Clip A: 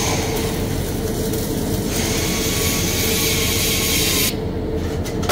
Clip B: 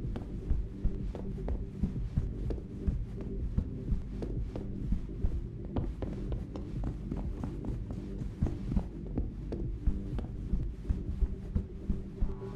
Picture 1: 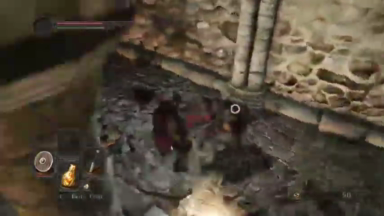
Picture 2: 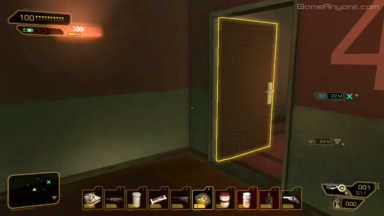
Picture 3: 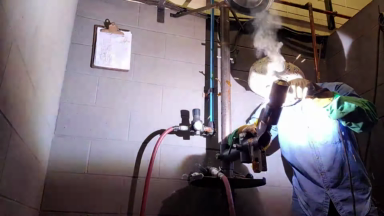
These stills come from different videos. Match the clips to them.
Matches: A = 3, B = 2